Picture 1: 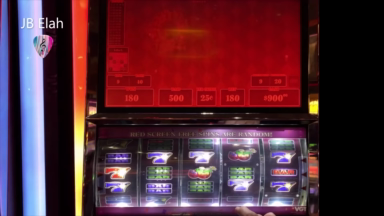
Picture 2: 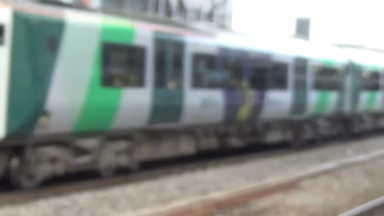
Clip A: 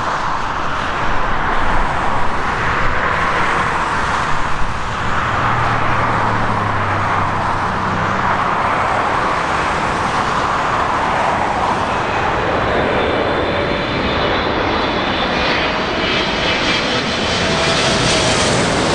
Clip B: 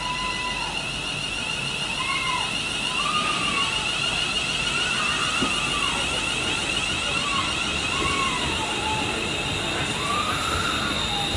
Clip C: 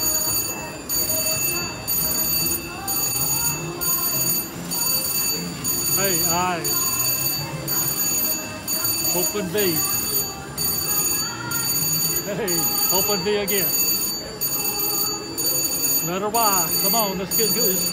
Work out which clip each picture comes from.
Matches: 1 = C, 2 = B